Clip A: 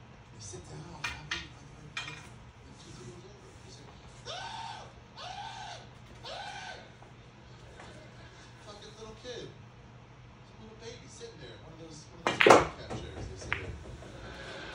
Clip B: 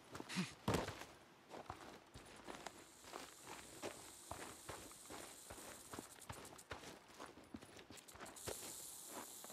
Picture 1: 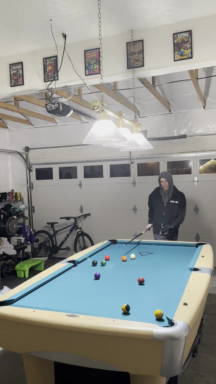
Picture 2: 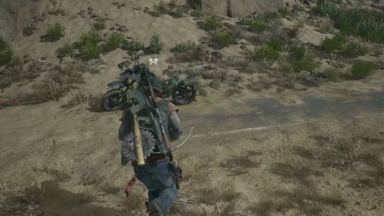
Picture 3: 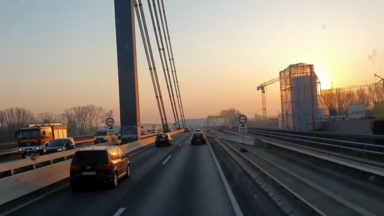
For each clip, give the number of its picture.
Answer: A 1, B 2